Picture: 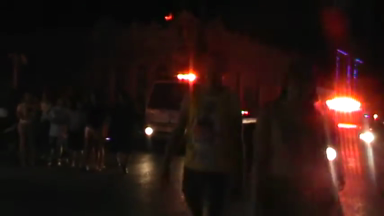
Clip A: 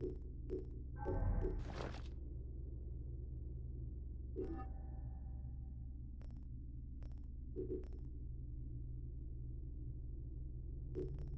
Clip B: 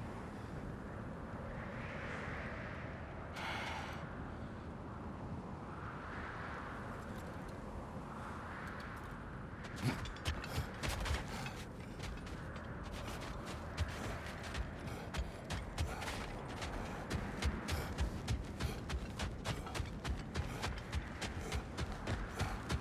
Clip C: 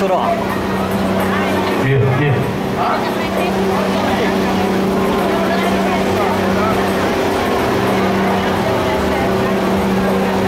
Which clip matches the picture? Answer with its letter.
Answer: C